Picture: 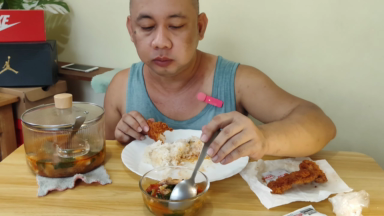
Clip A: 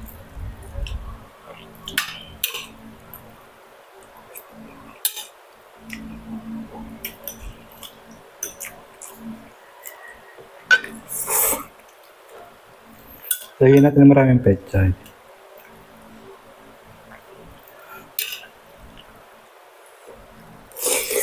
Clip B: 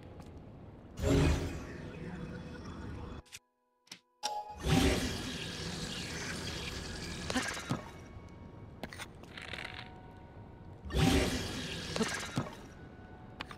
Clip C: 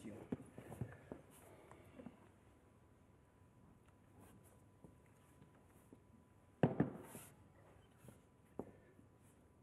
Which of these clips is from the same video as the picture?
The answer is A